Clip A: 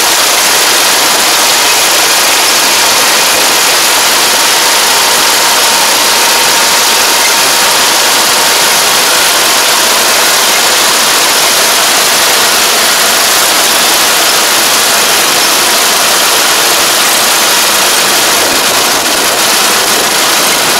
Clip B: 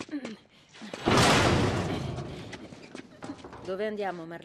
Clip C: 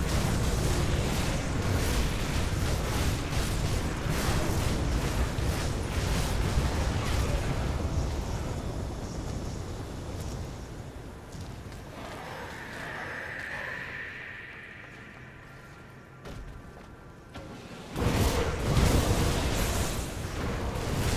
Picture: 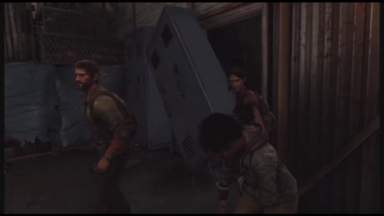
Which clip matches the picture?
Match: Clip B